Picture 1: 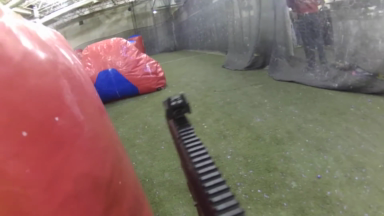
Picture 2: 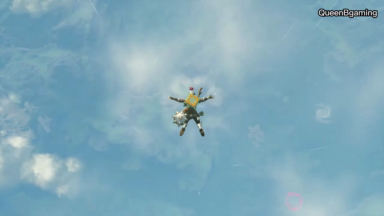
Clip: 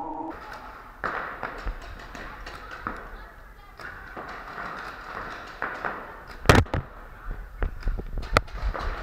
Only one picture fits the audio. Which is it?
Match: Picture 1